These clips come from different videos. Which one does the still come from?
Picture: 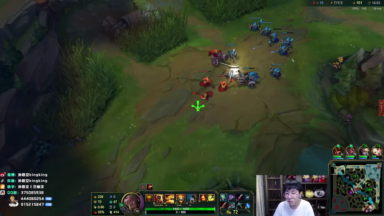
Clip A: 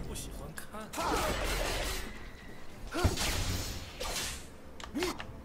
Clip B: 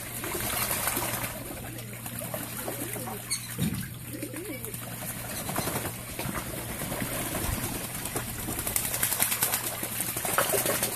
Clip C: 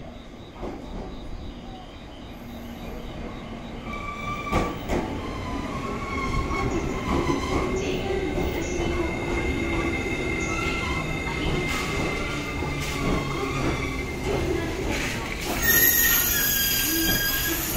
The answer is A